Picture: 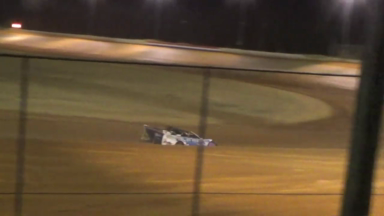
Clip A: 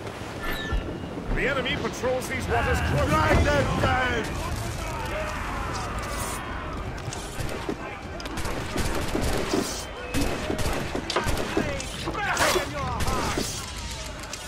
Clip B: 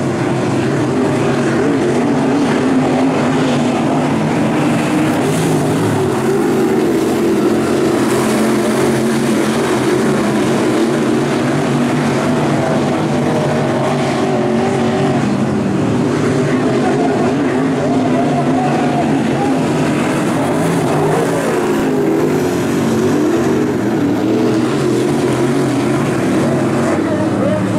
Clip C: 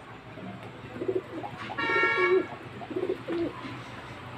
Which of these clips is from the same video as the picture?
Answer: B